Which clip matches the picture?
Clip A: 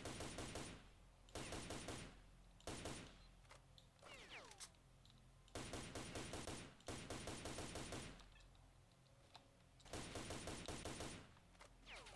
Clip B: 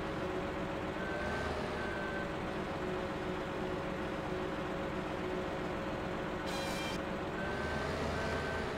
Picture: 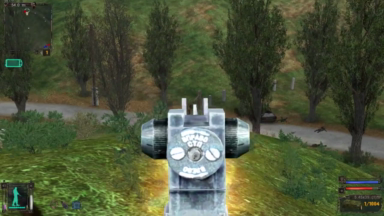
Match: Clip A